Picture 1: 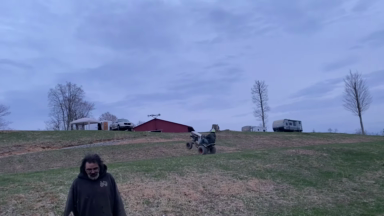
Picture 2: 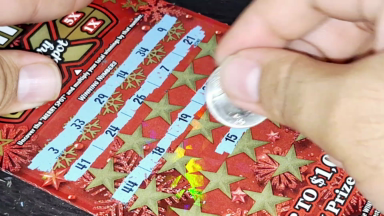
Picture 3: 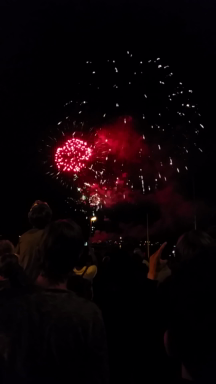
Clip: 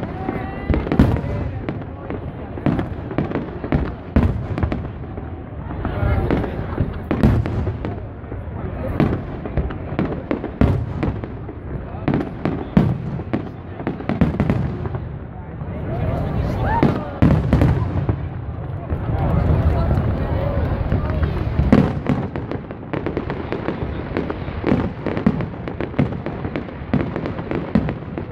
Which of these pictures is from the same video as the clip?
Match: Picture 3